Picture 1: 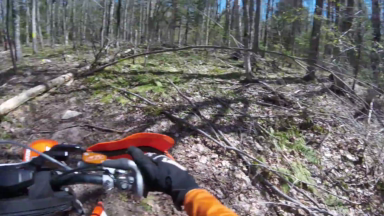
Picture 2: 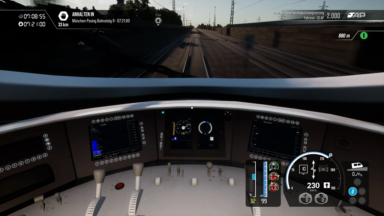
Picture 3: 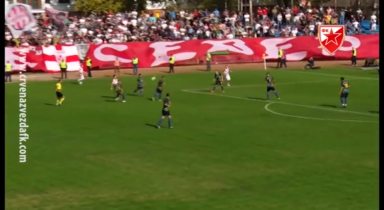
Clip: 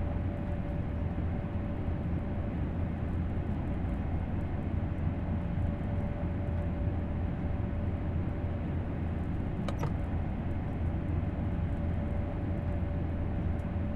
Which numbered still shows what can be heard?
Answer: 2